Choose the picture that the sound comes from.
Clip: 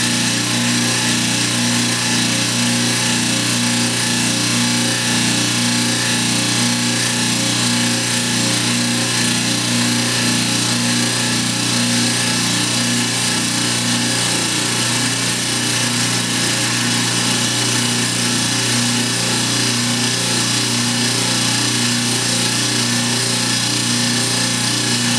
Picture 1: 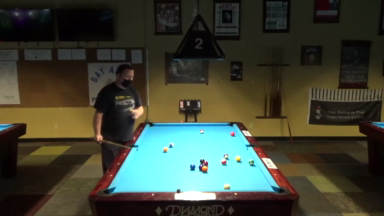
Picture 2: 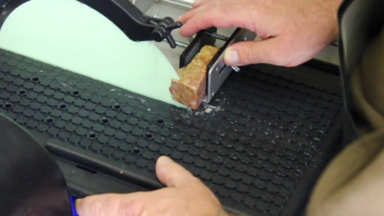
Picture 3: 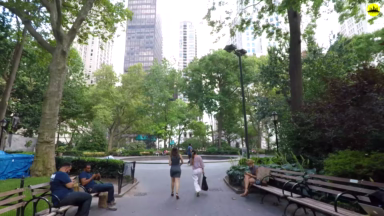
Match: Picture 2